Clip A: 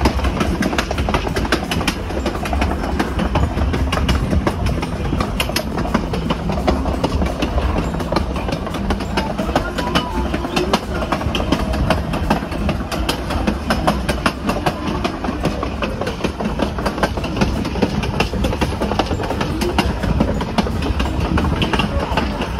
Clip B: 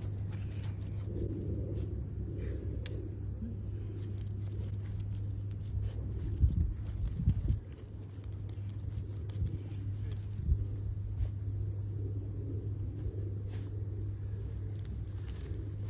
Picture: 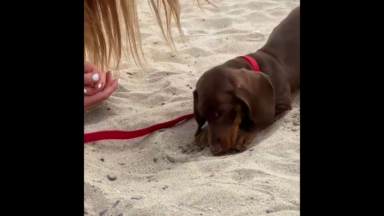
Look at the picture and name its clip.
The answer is B